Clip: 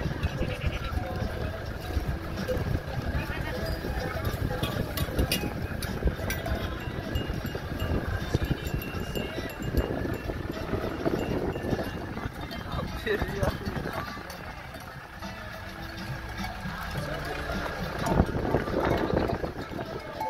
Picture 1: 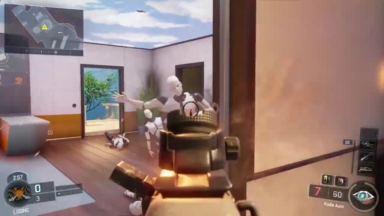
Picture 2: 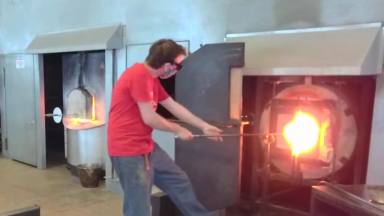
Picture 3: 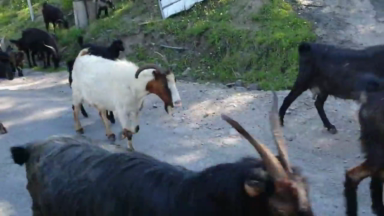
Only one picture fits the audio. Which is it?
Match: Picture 3